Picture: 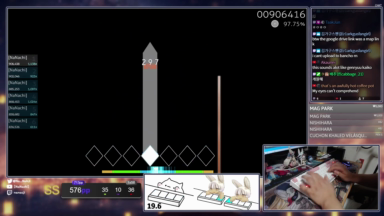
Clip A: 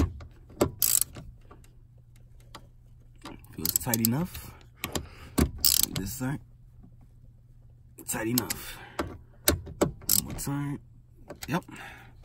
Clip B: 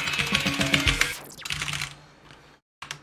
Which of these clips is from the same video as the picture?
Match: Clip B